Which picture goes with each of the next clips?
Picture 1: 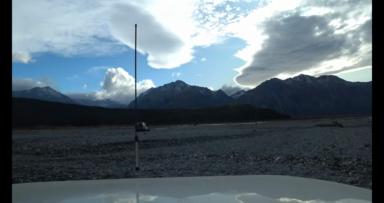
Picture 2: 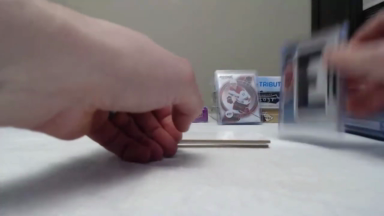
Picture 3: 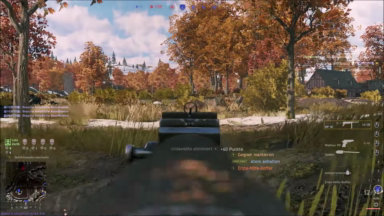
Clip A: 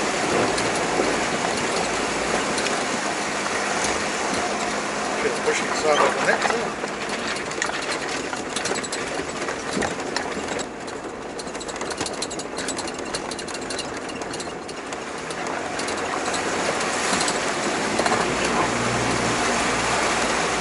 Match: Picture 1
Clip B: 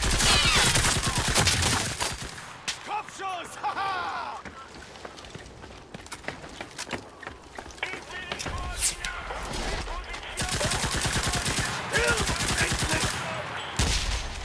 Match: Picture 3